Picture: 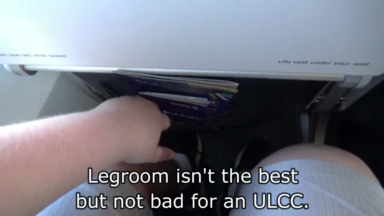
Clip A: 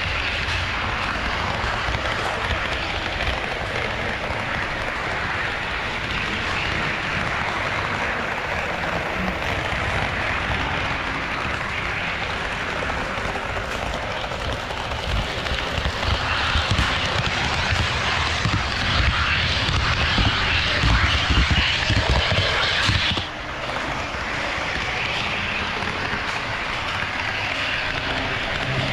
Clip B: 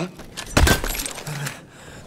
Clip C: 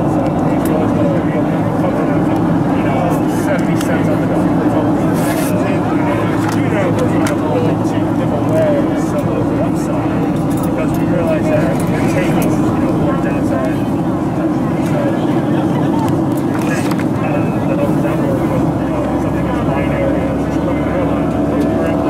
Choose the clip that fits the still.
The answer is C